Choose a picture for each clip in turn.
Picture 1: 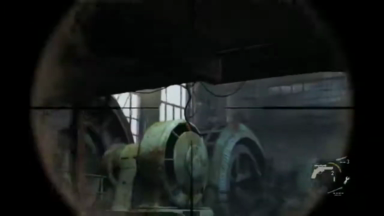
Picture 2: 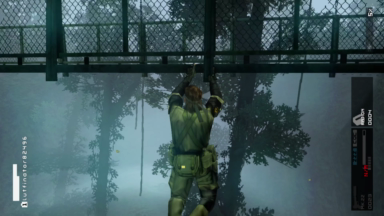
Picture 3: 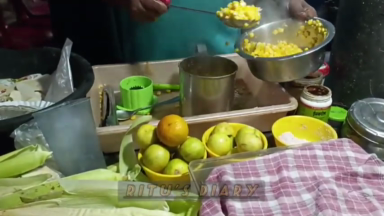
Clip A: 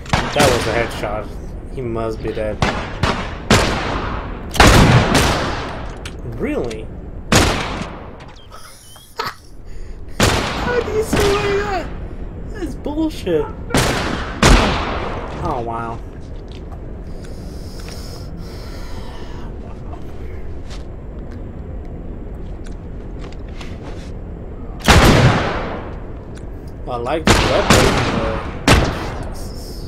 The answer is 1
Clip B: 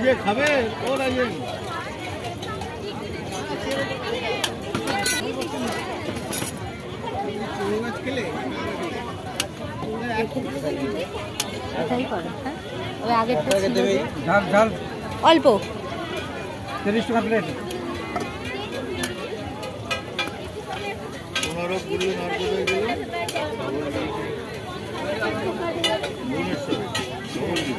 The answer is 3